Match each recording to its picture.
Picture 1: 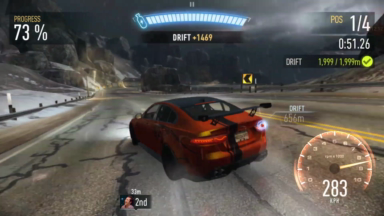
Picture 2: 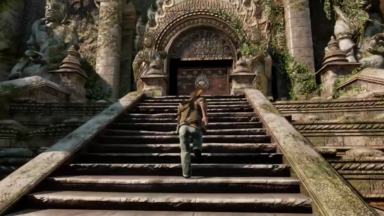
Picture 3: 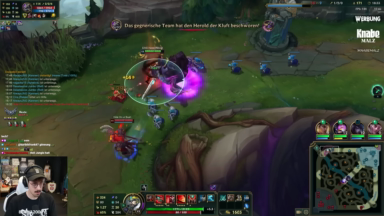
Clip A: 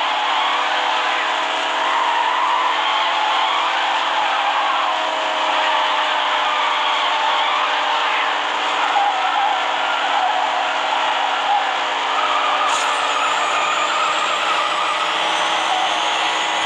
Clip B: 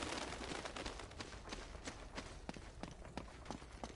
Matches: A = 1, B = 2